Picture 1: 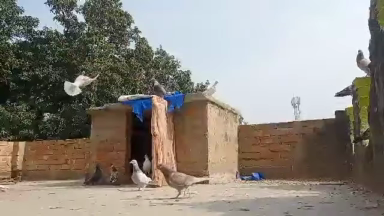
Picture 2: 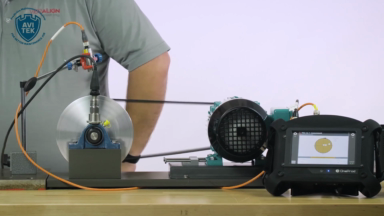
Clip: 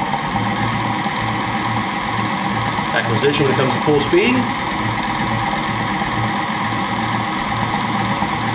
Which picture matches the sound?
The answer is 2